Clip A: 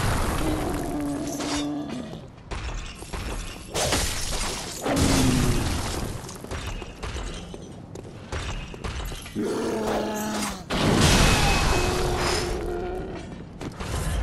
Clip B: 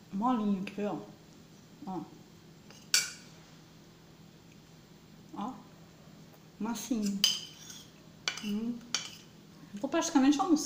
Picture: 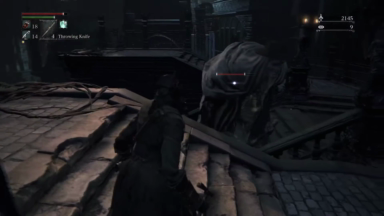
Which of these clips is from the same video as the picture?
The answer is A